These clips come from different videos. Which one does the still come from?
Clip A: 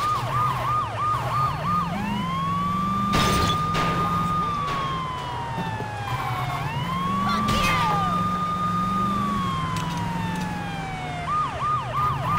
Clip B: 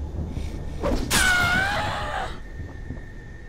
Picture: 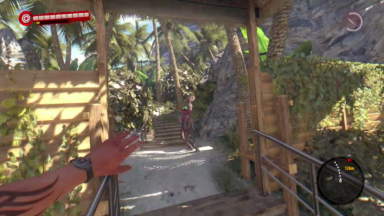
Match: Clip B